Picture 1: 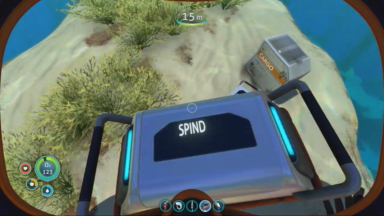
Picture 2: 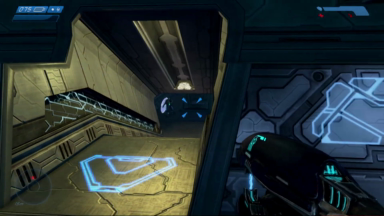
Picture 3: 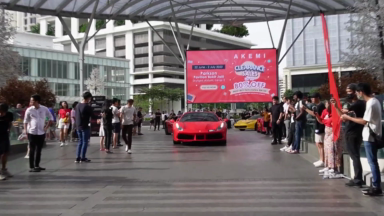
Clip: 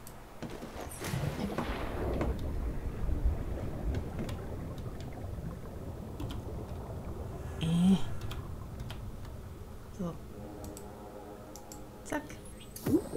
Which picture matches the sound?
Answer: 1